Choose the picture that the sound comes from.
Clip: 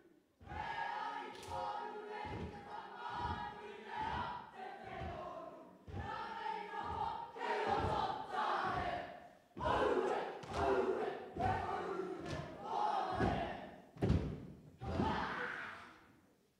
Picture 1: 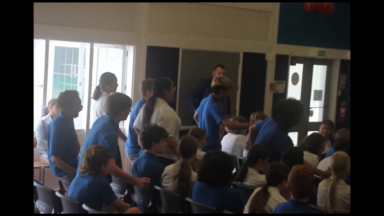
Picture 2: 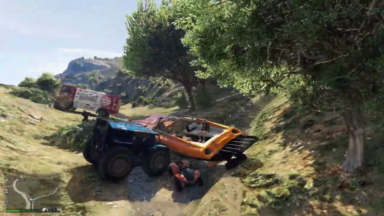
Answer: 1